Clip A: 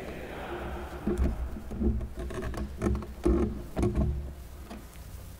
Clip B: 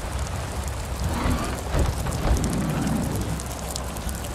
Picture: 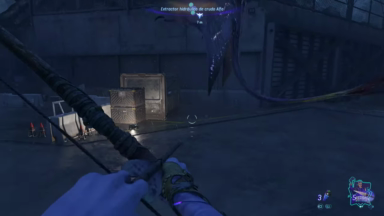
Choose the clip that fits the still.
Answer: B